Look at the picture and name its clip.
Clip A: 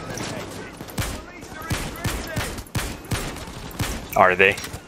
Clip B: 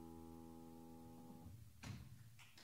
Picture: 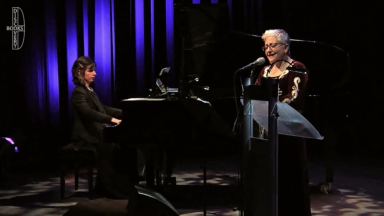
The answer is B